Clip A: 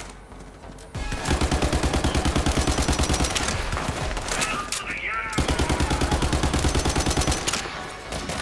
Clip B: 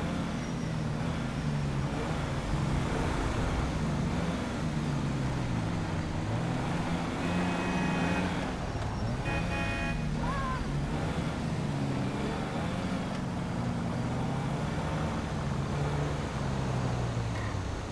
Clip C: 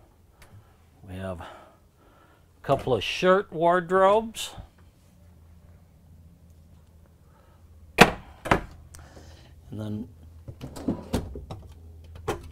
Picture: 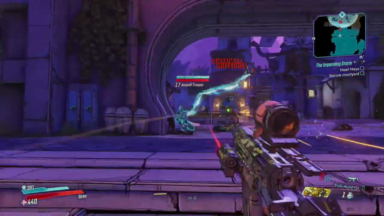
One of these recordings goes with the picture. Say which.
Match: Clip A